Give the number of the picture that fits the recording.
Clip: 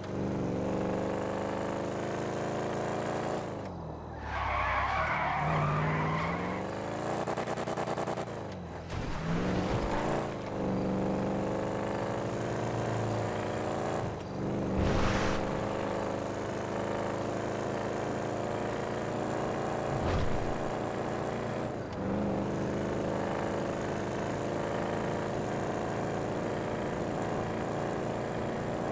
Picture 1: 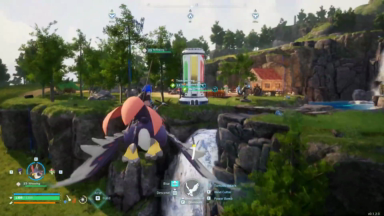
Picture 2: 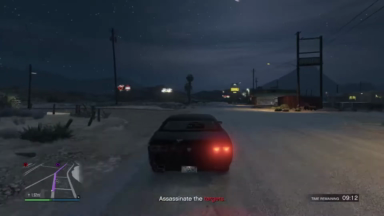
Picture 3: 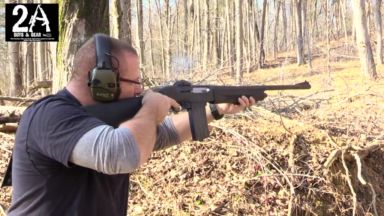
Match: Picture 2